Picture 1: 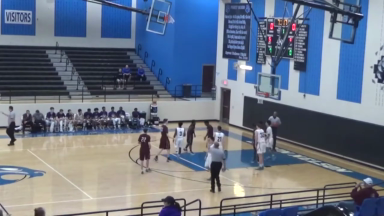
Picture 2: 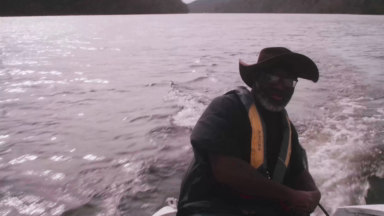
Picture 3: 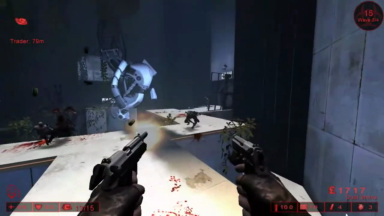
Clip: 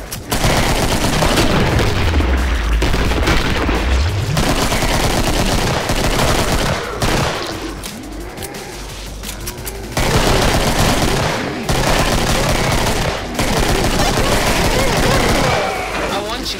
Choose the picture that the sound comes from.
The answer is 3